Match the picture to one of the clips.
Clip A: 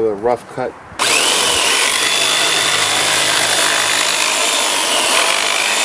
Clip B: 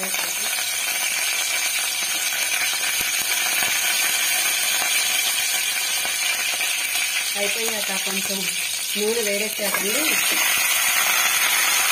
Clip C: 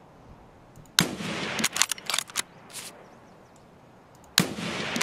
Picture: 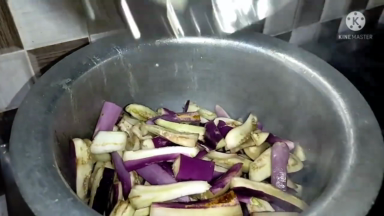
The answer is B